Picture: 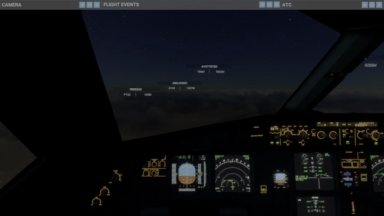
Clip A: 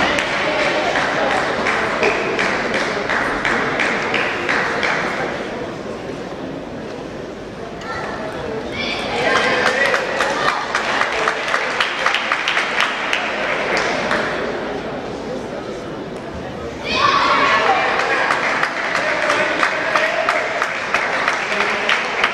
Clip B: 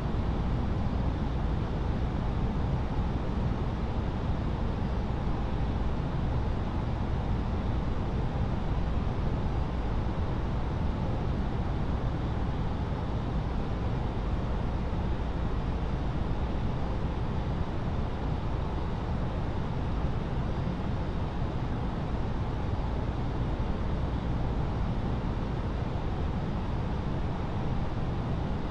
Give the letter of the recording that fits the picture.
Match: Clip B